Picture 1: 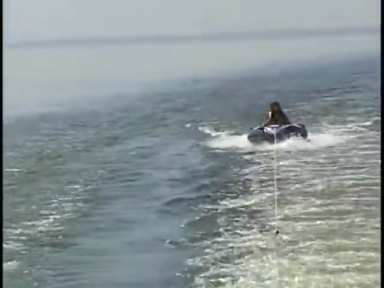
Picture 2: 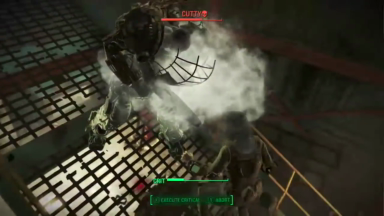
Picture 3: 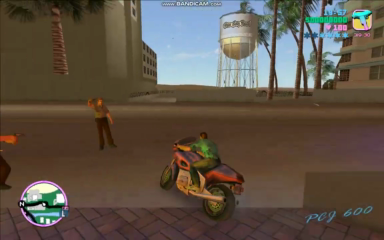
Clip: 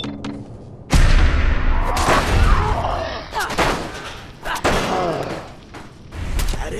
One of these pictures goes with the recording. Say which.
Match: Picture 2